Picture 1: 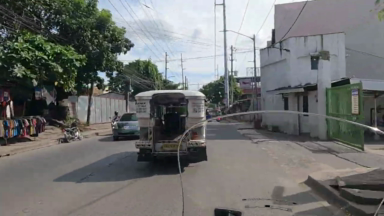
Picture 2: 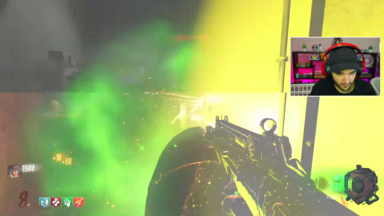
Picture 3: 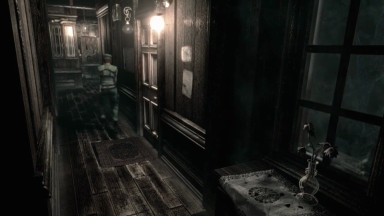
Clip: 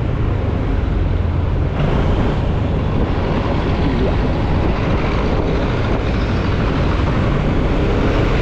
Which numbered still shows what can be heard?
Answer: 1